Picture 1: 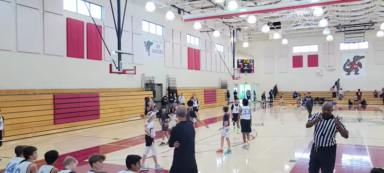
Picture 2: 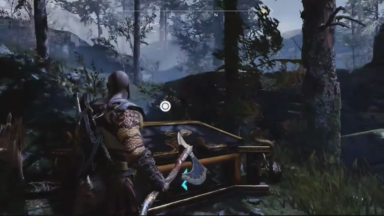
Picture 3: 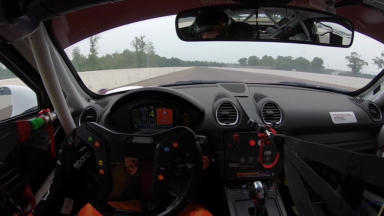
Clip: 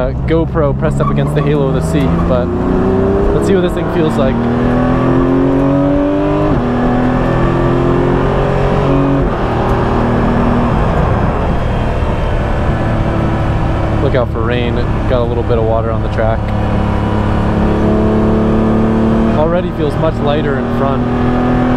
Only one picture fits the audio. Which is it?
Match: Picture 3